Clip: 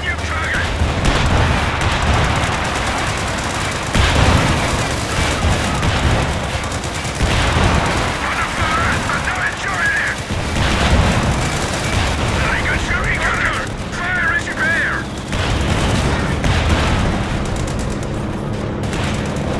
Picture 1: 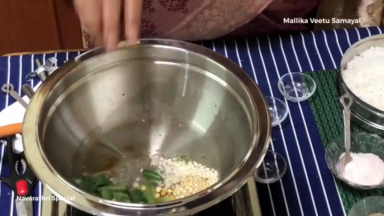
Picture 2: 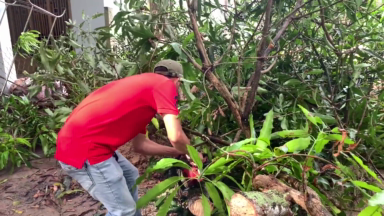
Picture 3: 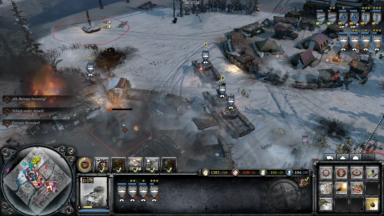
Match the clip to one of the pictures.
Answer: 3